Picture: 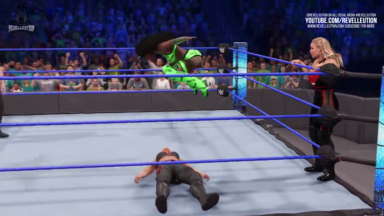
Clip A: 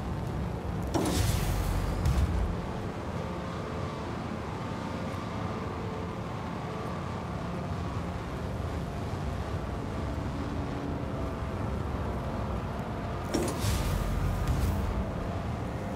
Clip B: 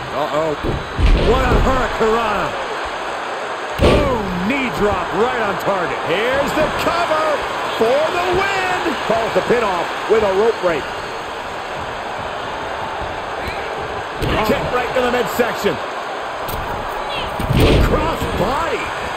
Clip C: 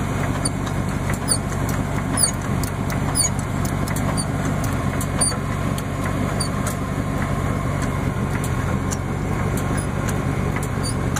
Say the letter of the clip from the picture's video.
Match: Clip B